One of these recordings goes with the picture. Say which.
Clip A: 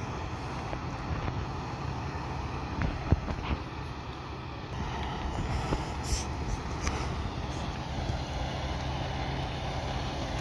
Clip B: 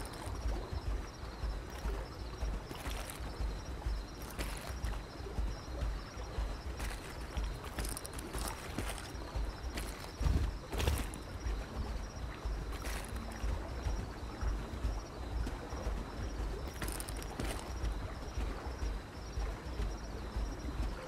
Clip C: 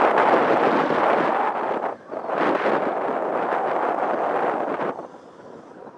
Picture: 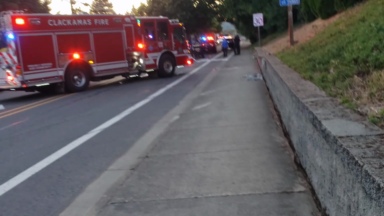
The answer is A